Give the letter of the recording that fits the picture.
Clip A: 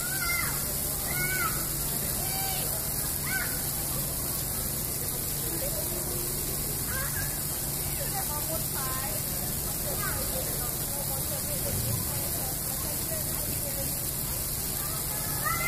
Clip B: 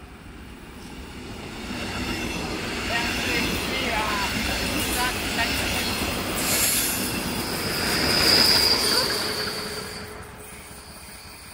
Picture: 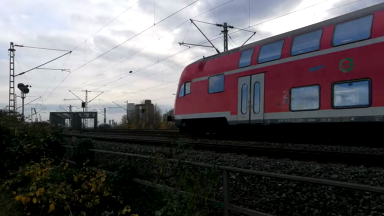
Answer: B